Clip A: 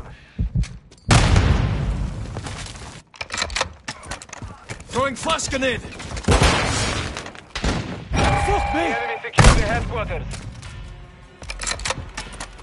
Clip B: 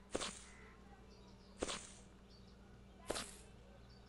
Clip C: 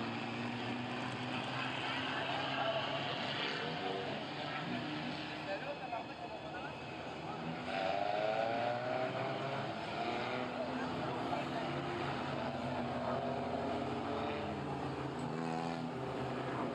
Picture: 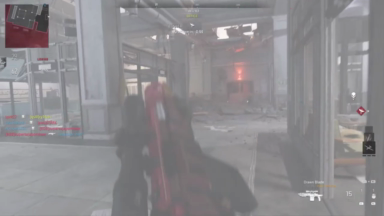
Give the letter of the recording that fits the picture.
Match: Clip A